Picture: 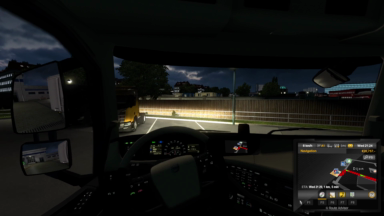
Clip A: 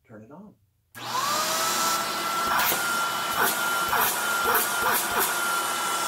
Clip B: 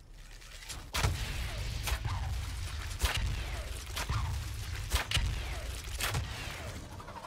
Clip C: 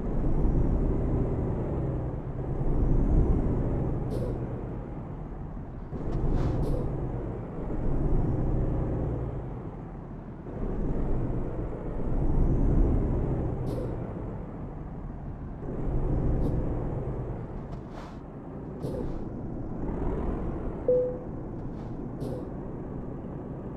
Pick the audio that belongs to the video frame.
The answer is C